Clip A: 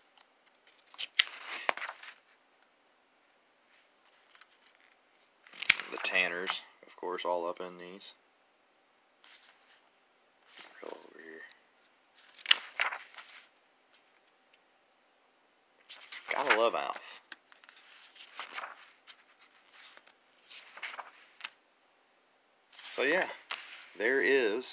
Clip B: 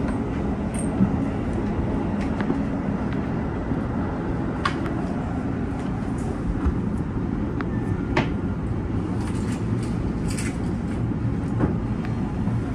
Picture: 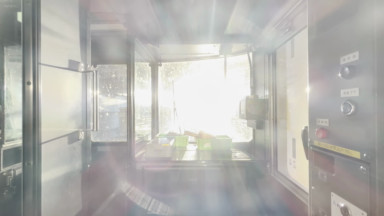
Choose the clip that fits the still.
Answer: B